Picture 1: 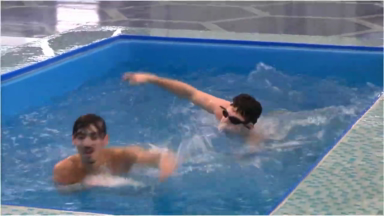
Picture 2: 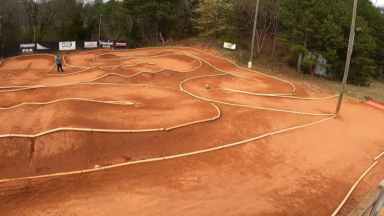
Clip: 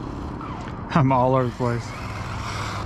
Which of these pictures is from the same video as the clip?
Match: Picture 2